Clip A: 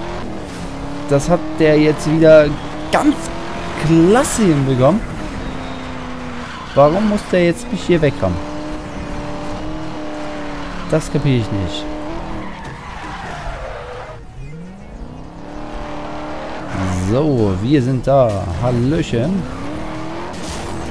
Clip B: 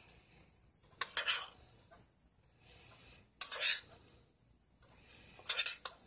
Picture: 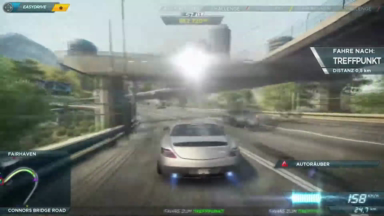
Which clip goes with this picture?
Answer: A